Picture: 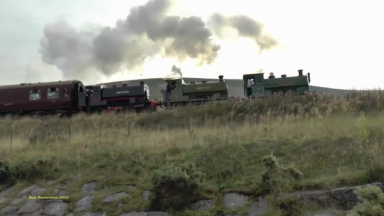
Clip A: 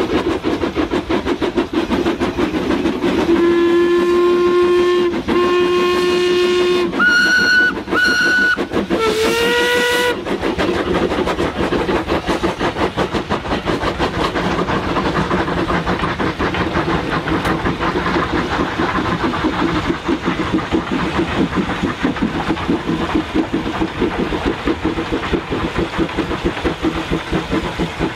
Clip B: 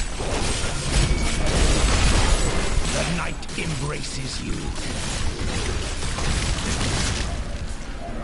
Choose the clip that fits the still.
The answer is A